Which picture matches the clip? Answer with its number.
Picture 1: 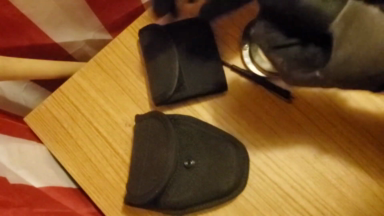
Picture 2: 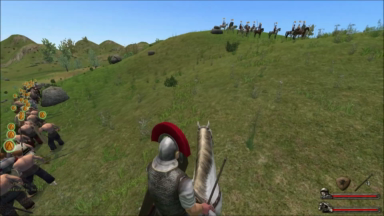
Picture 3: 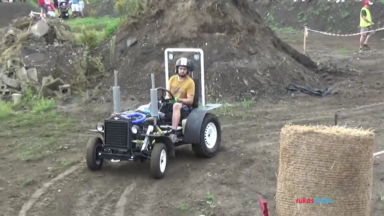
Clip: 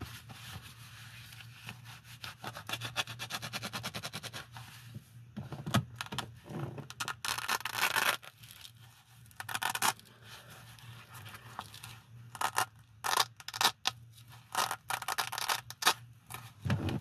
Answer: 1